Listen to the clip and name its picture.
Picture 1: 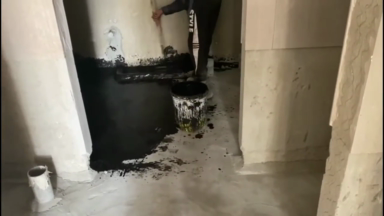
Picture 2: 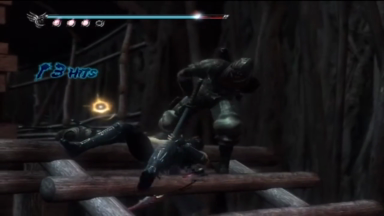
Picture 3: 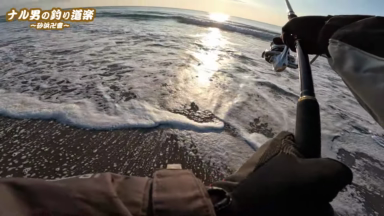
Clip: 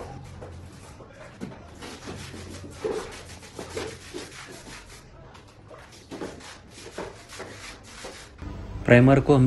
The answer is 1